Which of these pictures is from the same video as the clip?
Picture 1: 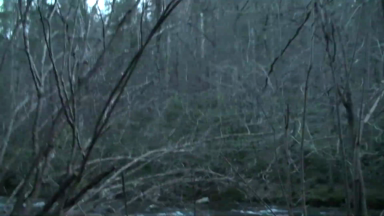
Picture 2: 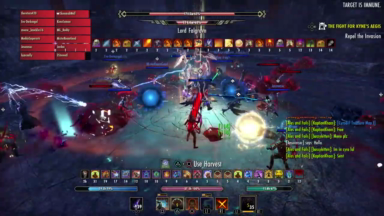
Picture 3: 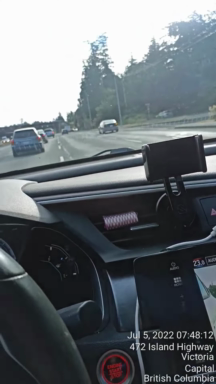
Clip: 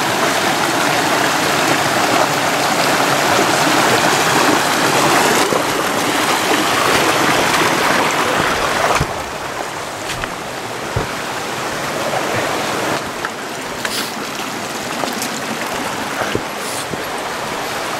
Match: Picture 1